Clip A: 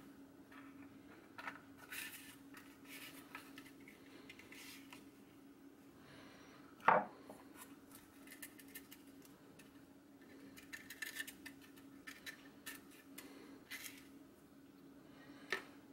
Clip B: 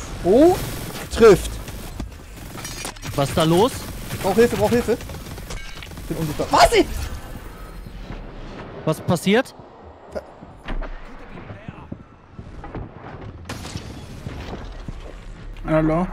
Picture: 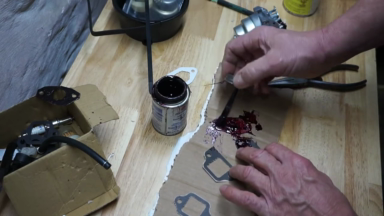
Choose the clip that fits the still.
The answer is A